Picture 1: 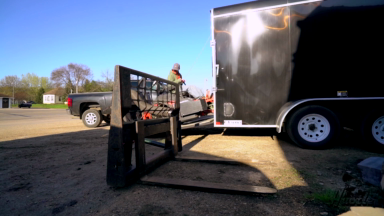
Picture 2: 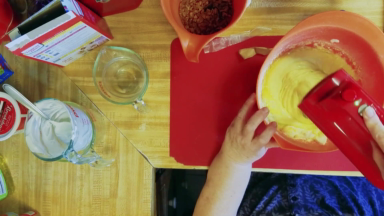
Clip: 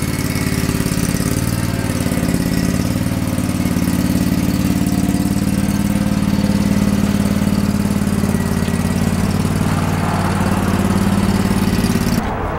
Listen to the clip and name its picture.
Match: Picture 1